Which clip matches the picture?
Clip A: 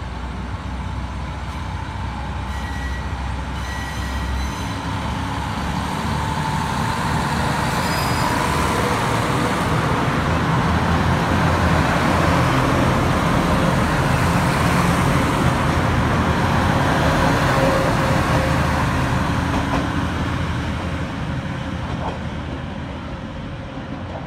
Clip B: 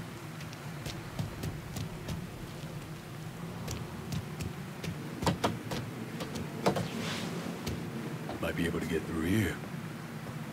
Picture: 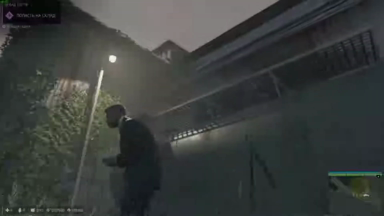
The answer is B